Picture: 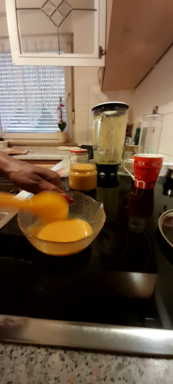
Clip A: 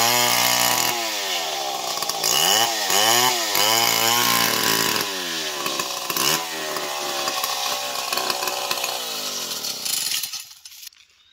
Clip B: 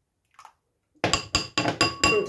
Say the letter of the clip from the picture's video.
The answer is B